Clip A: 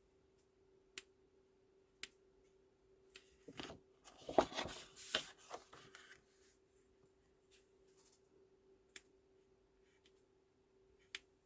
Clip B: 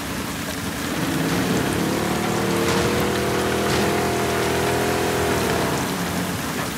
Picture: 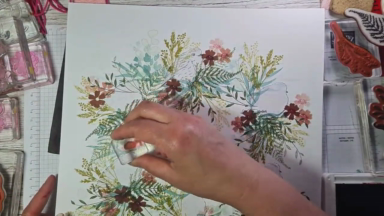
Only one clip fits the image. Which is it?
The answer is A